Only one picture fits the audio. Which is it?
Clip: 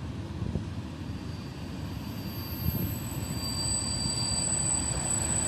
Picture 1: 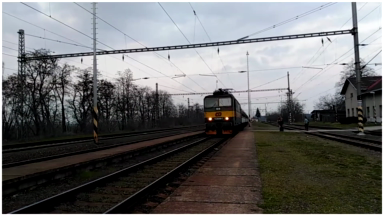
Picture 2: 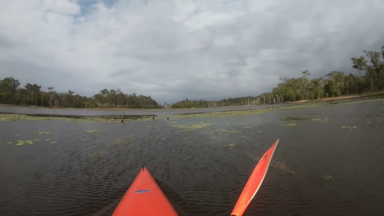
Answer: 1